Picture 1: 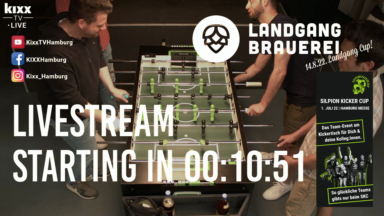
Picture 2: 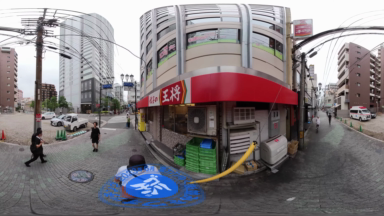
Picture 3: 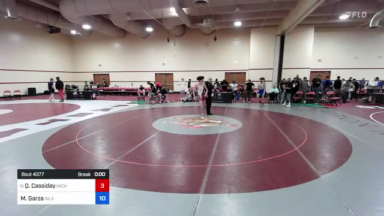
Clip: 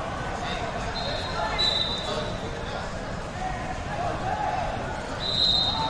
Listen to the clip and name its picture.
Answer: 3